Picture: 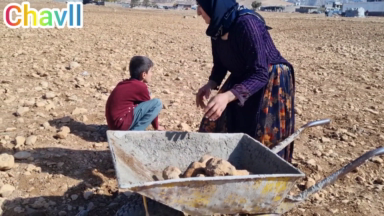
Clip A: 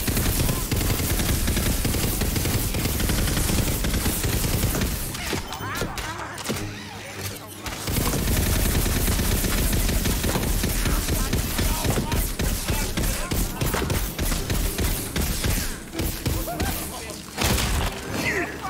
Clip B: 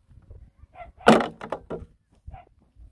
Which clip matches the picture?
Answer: B